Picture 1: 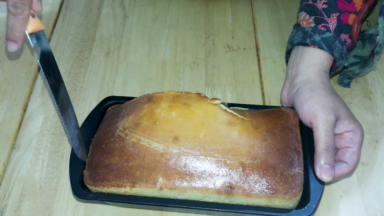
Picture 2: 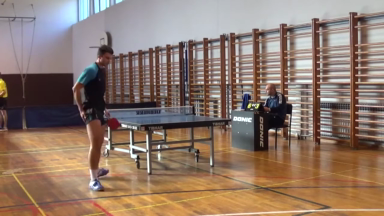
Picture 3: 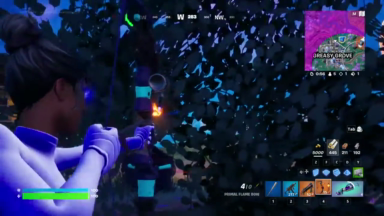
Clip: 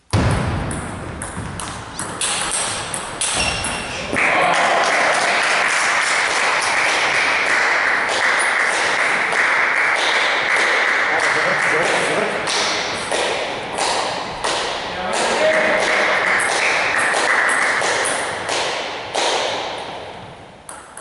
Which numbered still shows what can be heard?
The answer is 2